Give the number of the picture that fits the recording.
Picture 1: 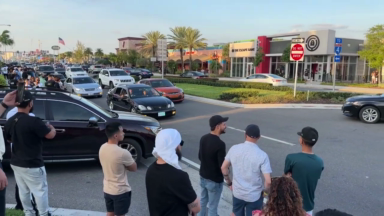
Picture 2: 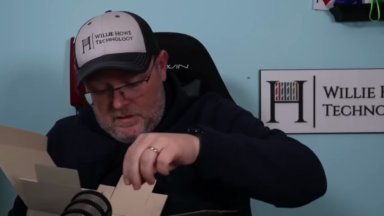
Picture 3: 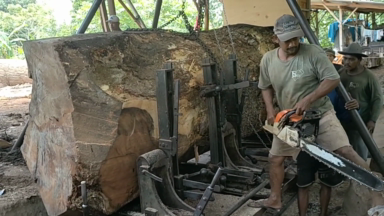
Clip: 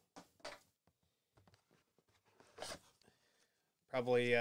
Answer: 2